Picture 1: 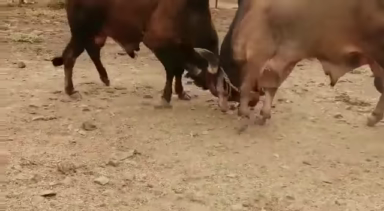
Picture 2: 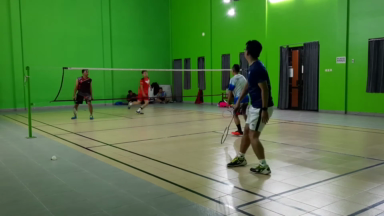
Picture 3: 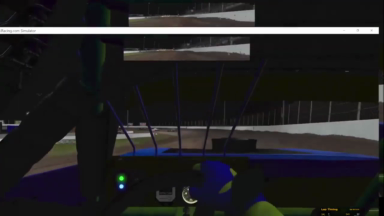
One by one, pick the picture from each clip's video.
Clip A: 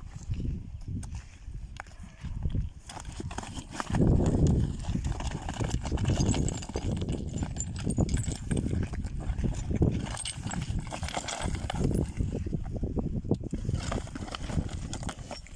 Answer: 1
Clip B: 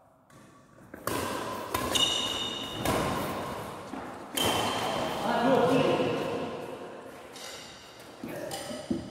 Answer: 2